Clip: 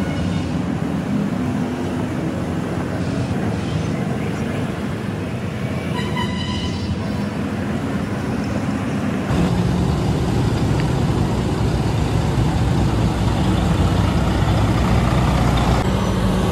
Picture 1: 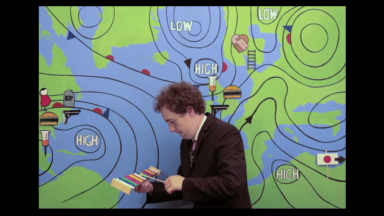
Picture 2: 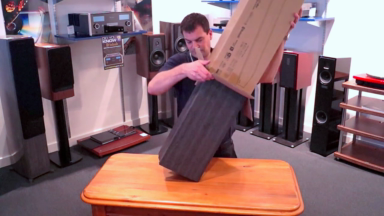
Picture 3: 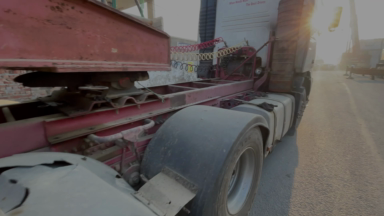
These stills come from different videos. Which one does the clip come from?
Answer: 3